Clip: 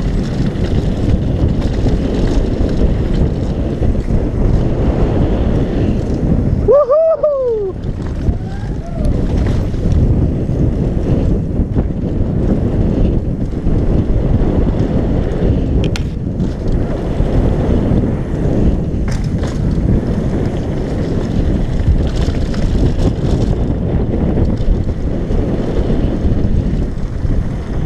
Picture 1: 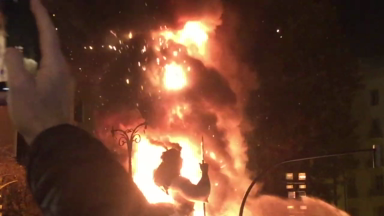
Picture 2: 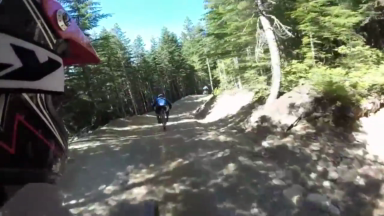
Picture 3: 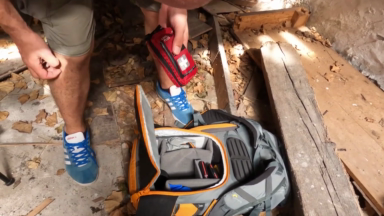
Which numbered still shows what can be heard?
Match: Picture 2